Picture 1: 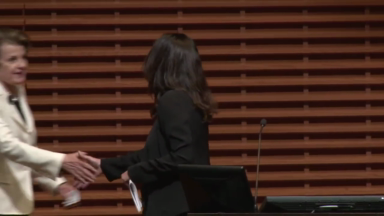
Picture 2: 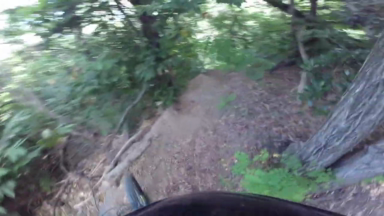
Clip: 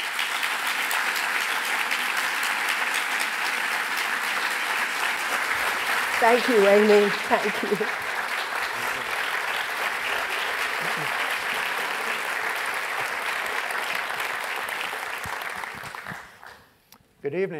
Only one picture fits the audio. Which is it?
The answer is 1